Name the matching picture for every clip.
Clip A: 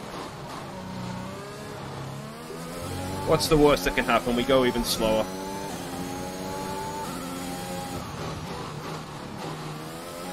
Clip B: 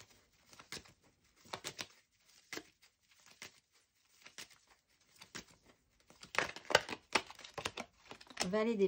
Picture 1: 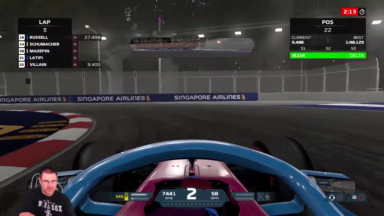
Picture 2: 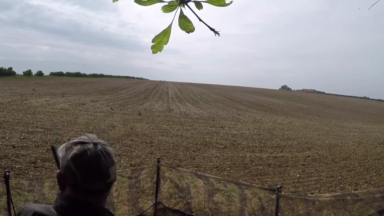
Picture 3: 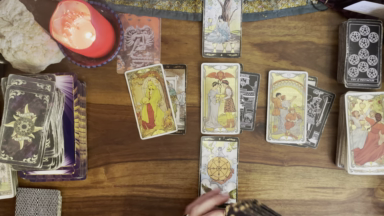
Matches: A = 1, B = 3